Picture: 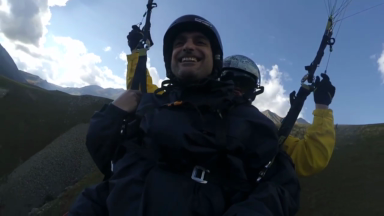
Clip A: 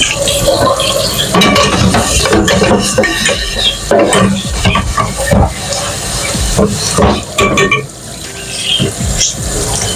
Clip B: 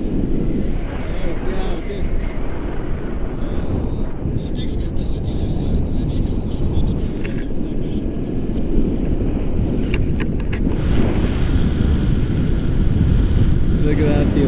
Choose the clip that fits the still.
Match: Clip B